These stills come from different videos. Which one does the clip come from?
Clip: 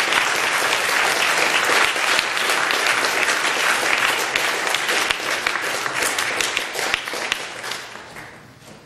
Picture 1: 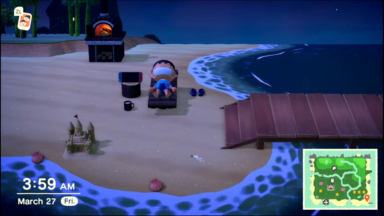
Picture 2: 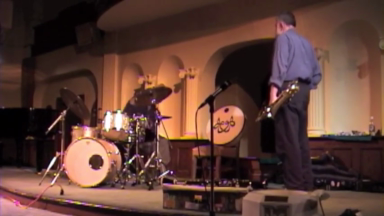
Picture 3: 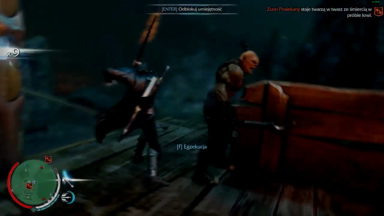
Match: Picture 2